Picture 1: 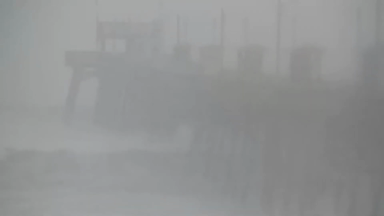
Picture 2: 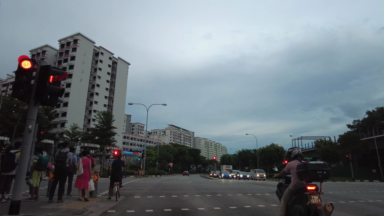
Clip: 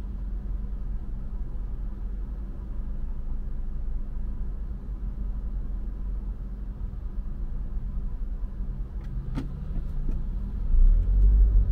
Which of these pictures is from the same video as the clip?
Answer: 2